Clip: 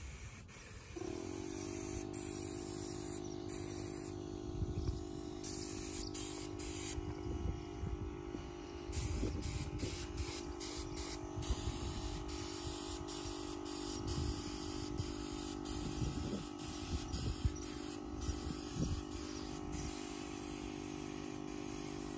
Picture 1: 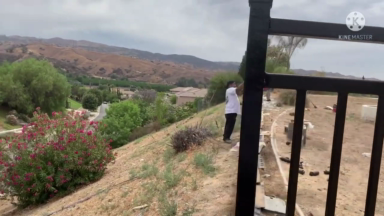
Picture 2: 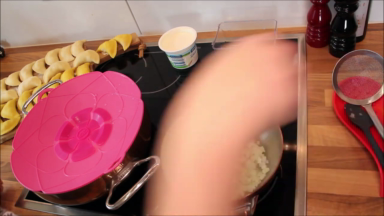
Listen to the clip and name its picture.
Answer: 1